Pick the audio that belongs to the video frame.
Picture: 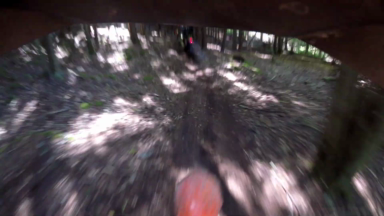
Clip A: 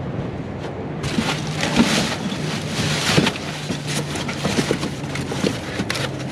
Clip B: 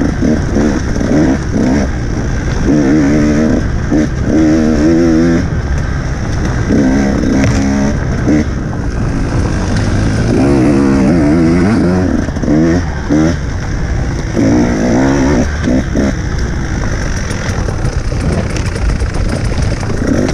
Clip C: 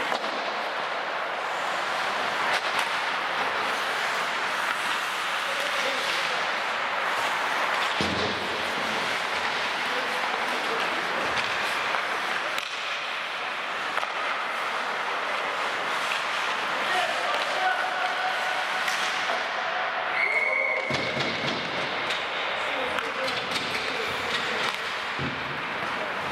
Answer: B